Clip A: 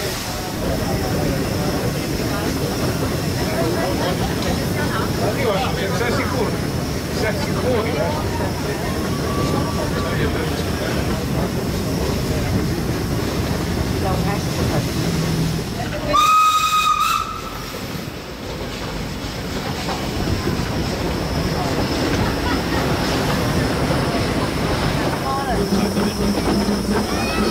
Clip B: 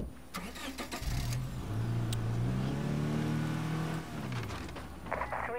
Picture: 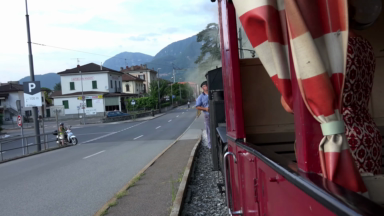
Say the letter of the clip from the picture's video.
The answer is A